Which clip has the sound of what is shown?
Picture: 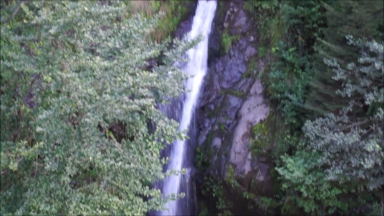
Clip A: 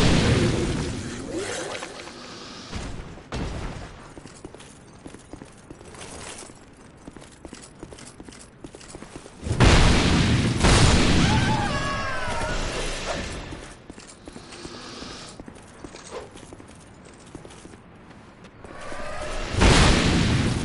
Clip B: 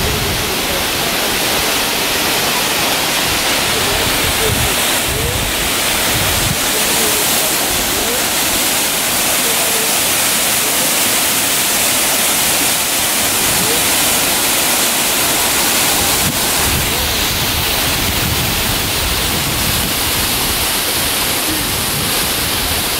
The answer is B